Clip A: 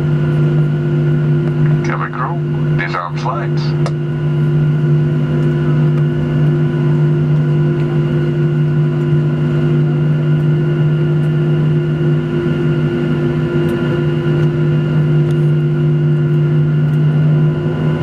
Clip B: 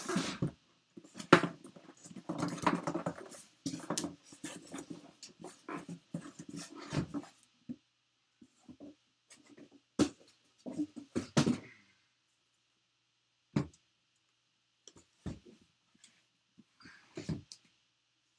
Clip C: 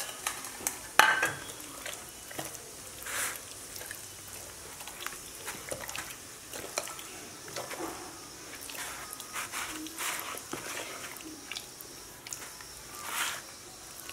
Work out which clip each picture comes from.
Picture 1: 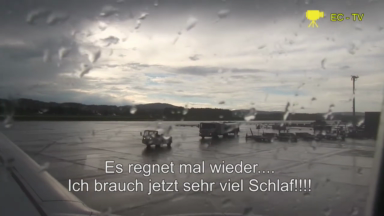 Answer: A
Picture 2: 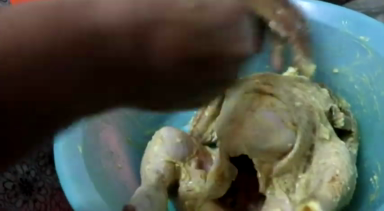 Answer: C